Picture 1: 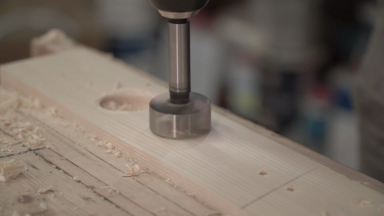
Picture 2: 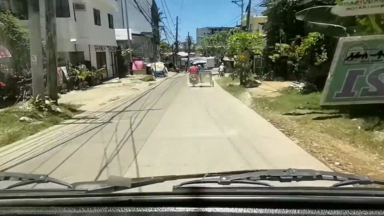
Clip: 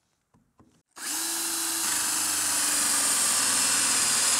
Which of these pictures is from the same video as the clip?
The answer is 1